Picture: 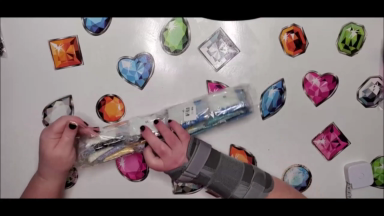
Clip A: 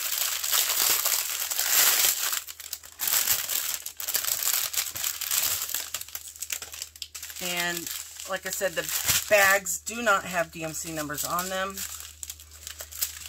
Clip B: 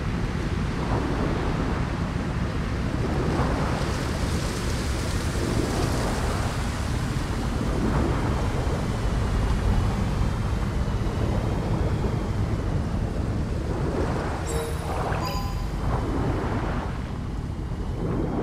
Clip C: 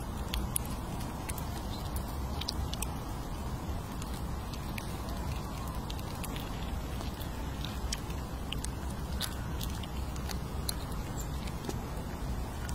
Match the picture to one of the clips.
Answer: A